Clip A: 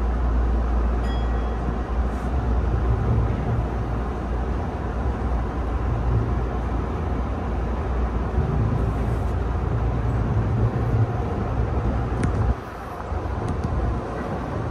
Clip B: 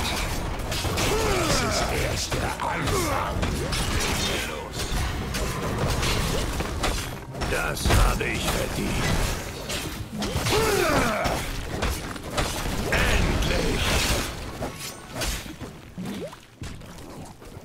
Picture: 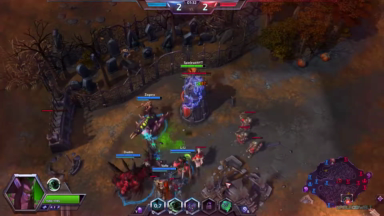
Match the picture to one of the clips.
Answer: B